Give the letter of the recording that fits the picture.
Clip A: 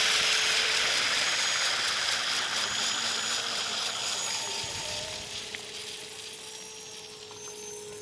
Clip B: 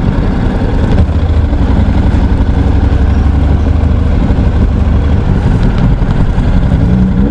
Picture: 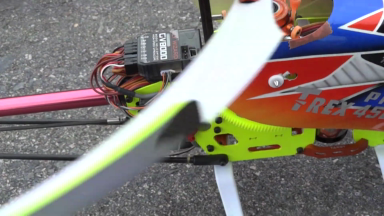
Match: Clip A